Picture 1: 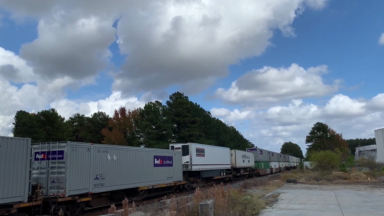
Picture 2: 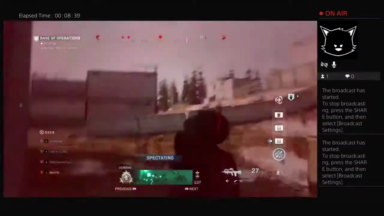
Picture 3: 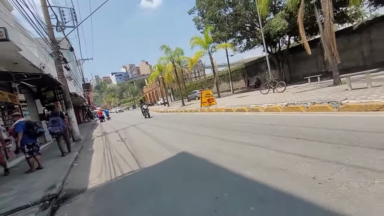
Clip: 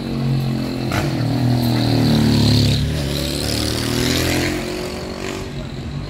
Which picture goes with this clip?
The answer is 3